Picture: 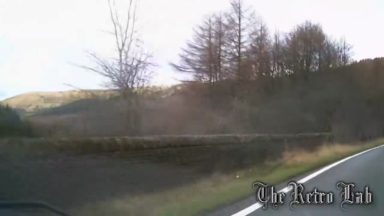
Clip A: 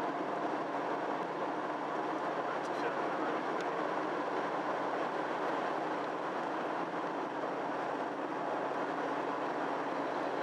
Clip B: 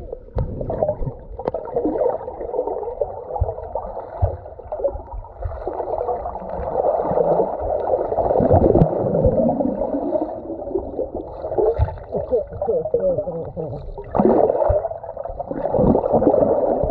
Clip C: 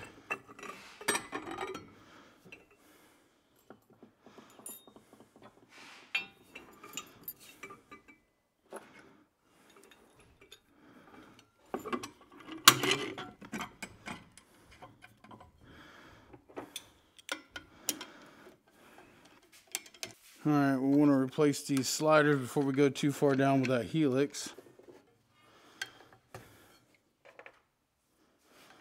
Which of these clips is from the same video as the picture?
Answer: A